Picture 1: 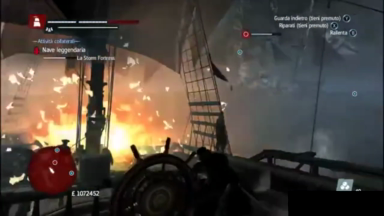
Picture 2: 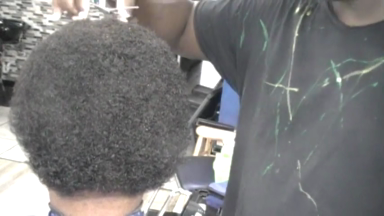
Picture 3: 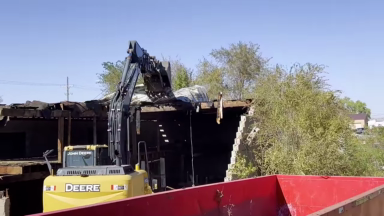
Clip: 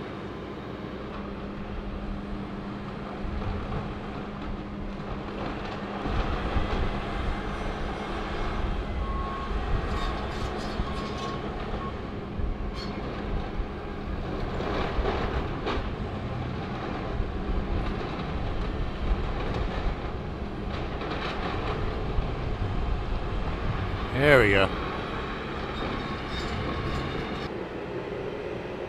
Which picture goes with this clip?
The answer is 3